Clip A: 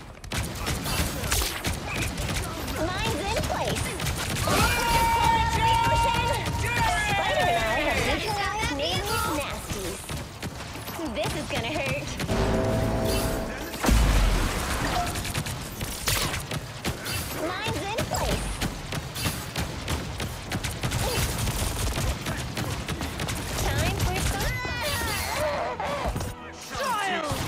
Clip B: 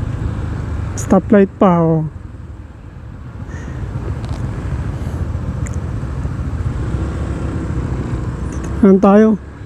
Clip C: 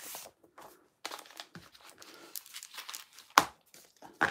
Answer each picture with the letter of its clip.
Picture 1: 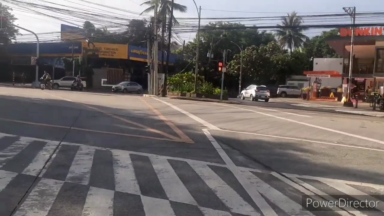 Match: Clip B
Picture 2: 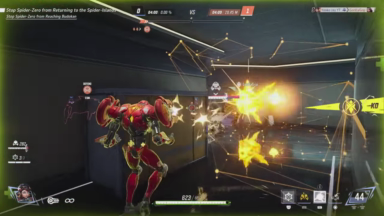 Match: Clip A